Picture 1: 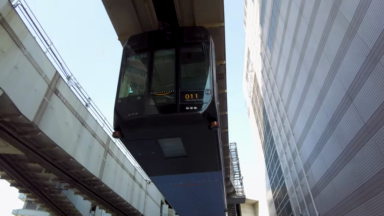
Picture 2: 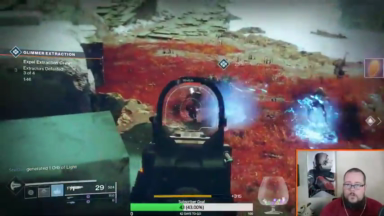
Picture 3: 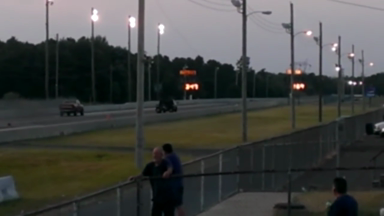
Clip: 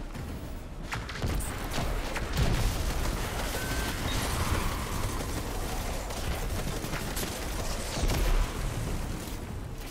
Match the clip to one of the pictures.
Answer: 2